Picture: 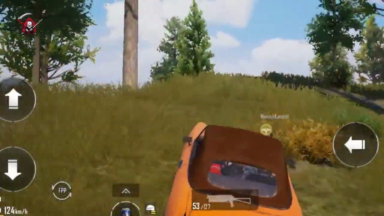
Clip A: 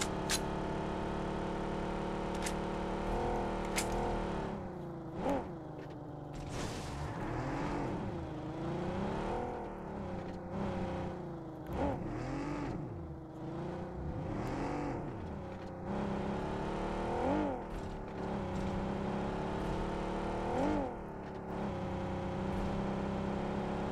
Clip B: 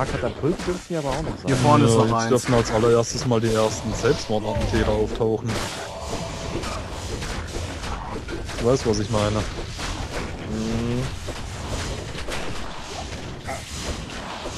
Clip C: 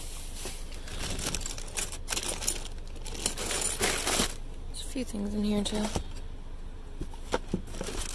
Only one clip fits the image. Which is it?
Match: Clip A